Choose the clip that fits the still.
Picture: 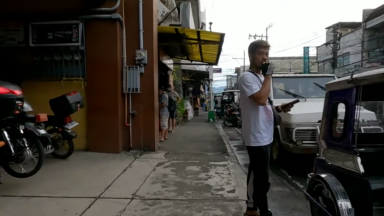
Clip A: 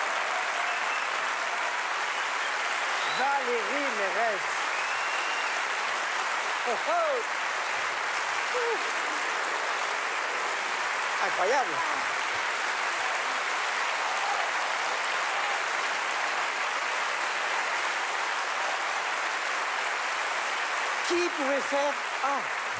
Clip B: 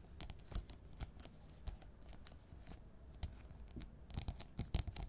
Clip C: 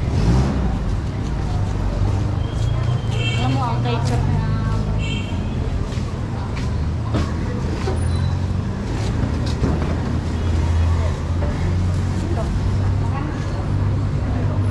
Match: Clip C